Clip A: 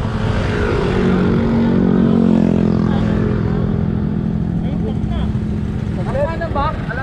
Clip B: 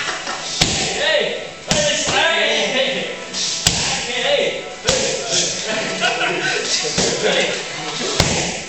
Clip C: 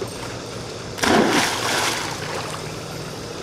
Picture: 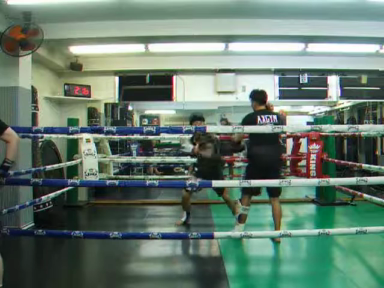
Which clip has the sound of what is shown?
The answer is B